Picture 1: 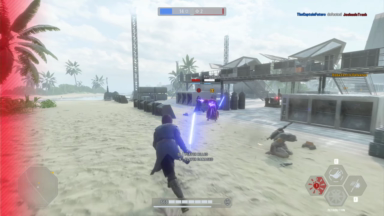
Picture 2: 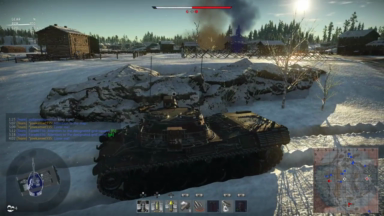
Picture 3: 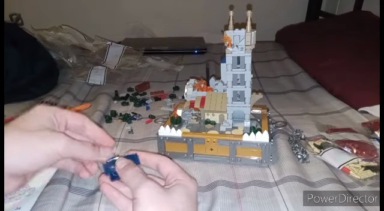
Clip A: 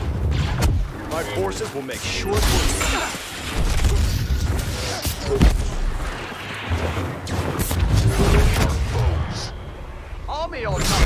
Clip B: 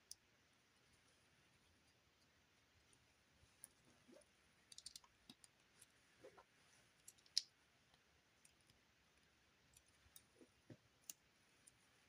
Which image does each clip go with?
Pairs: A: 1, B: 3